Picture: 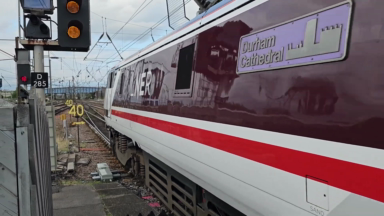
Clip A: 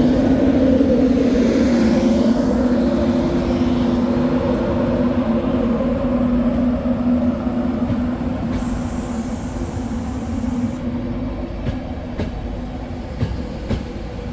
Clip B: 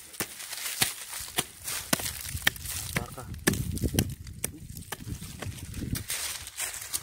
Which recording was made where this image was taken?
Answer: A